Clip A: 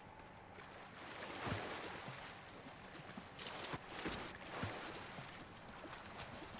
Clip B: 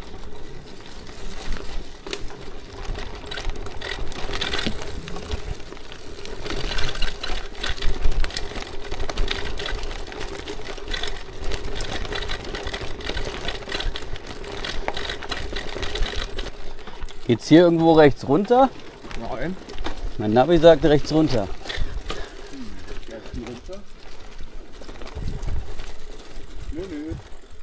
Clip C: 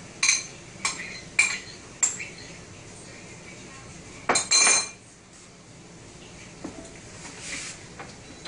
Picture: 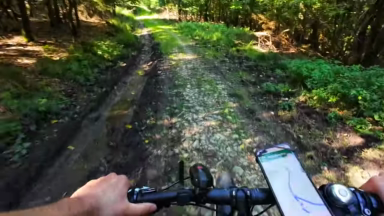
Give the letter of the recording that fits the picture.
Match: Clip B